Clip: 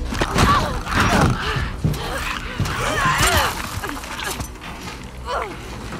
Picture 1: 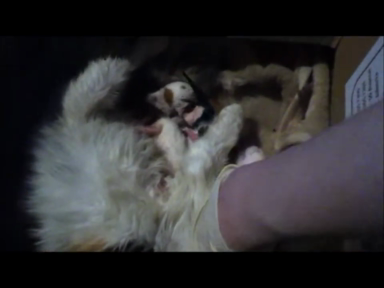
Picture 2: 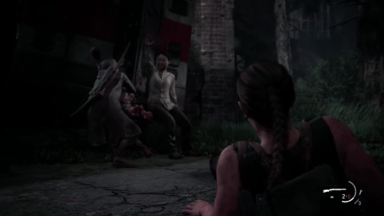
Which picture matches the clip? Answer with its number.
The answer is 2